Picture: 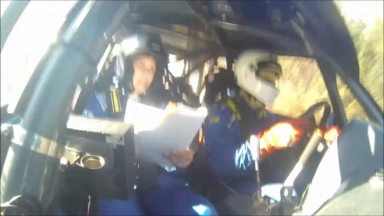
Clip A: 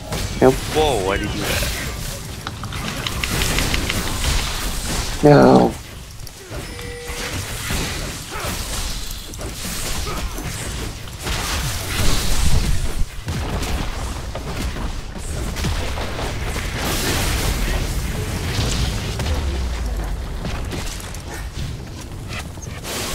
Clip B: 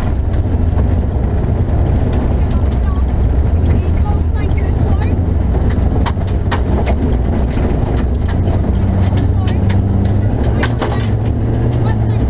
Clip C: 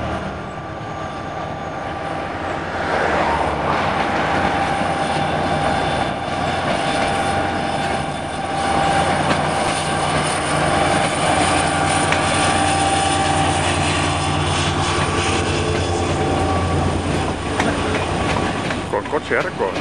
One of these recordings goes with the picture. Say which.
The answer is B